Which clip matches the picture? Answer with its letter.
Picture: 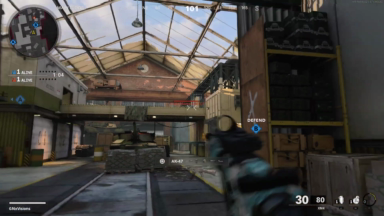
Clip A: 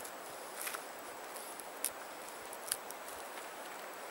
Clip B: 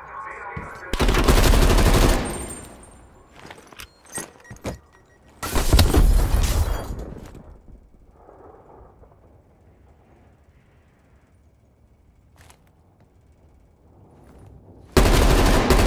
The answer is B